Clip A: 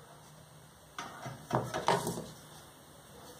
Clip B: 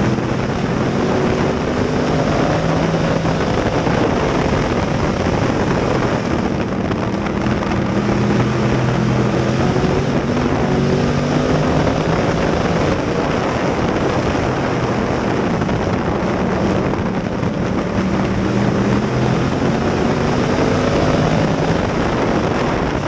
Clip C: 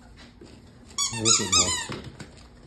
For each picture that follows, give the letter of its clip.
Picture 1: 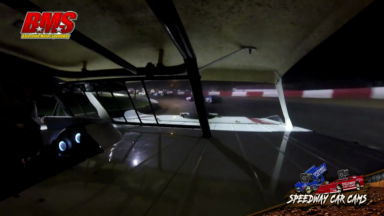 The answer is B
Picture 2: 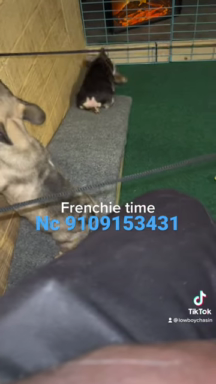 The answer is C